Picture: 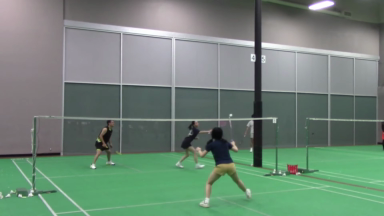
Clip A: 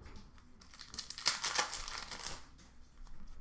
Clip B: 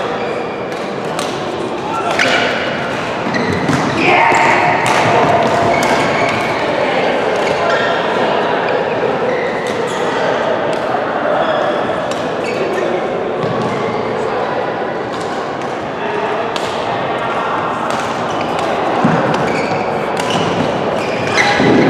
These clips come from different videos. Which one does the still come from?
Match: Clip B